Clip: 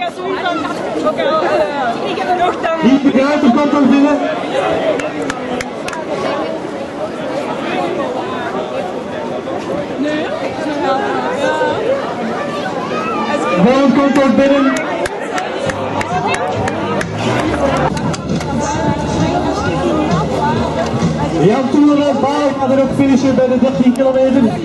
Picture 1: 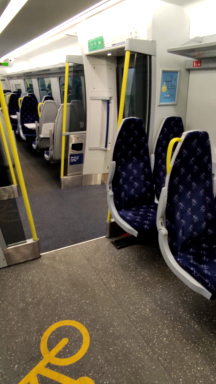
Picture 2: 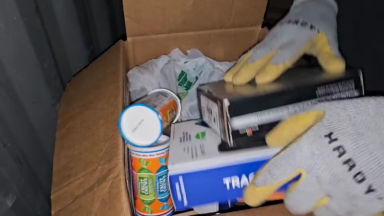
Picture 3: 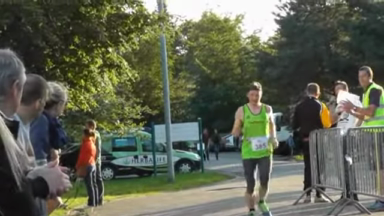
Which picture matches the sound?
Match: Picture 3